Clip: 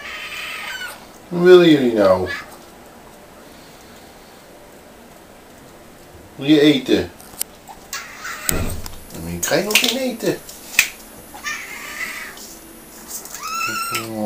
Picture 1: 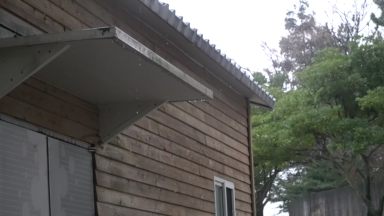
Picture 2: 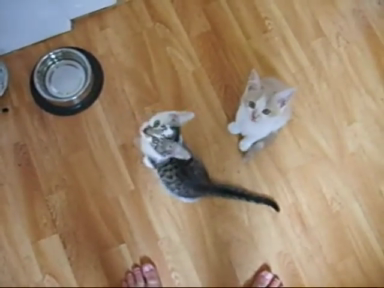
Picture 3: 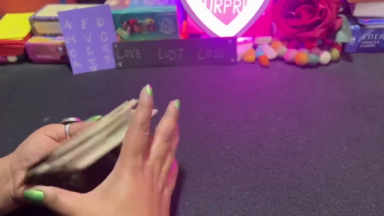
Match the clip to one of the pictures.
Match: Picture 2